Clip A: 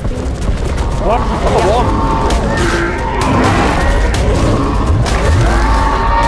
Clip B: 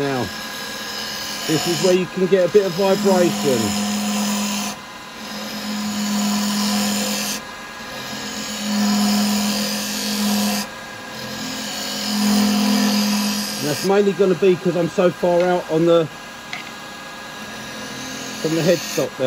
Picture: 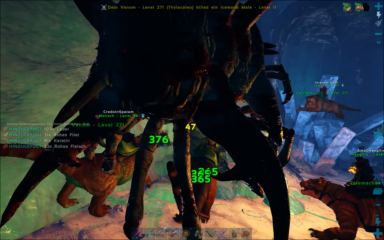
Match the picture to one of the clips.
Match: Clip A